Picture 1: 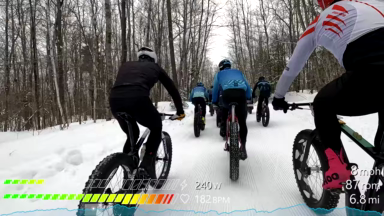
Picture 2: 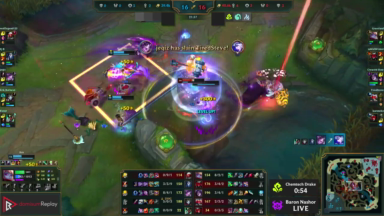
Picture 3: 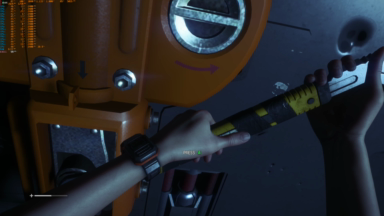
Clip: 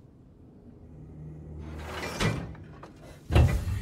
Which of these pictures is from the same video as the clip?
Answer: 3